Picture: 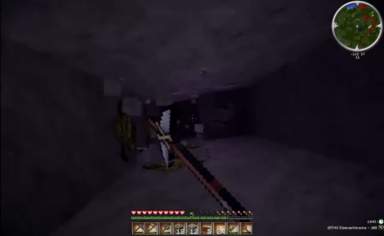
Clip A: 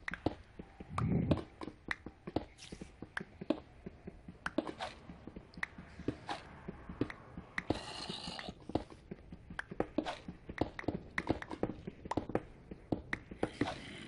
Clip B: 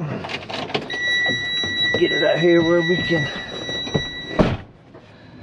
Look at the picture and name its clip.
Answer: A